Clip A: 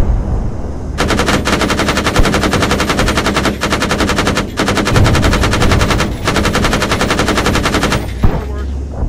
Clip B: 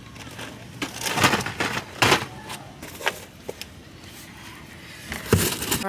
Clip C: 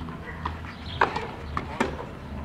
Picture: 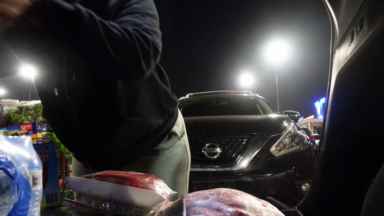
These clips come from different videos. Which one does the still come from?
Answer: B